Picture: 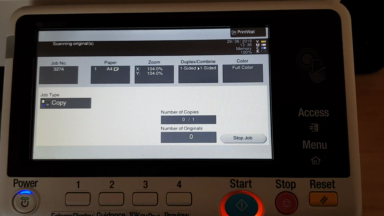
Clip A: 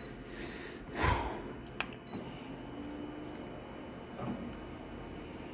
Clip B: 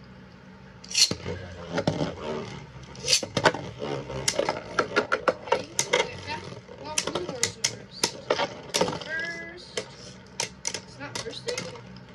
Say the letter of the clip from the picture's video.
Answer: A